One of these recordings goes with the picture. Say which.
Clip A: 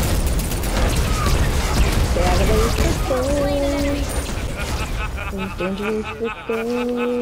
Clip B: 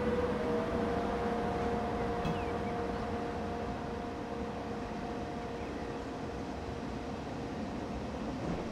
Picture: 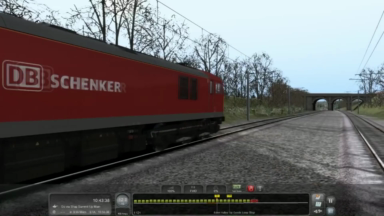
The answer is B